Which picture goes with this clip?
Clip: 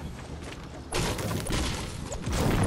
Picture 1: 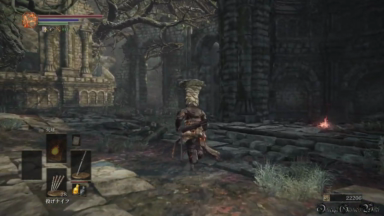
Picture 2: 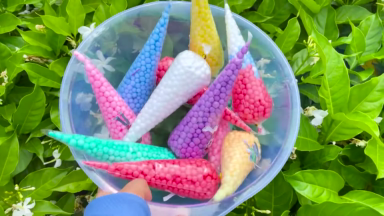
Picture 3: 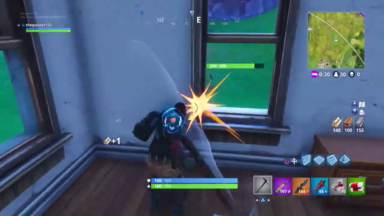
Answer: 3